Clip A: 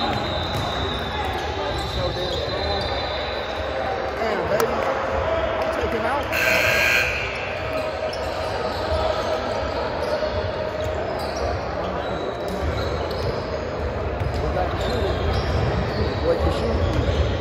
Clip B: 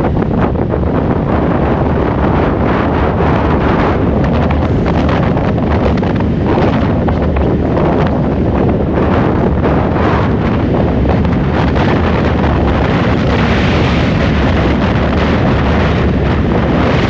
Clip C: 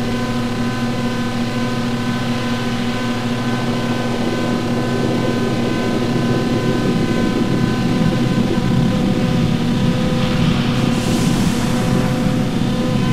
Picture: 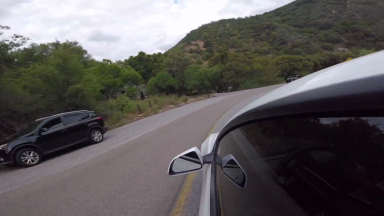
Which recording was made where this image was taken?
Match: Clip B